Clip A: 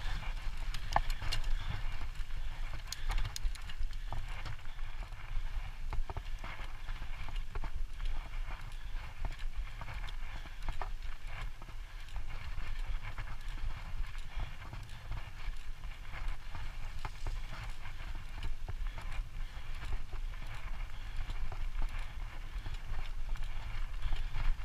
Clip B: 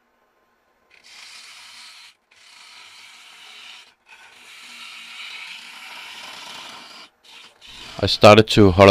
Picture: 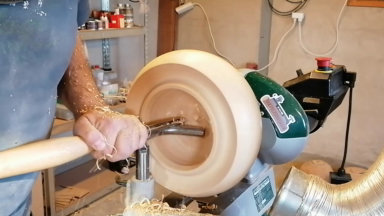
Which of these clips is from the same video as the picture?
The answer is B